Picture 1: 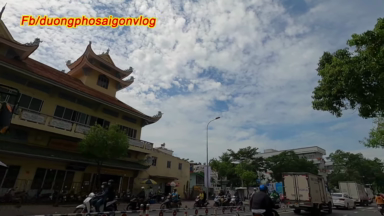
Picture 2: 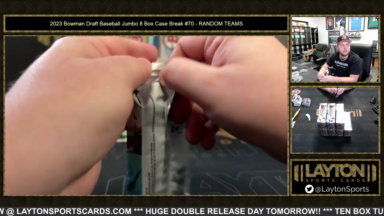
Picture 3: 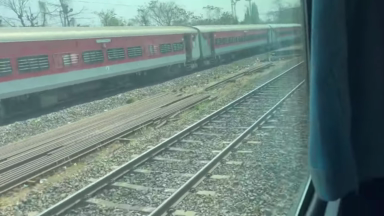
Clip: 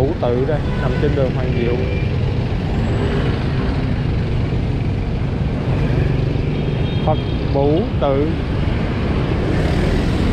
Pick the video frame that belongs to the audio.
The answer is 1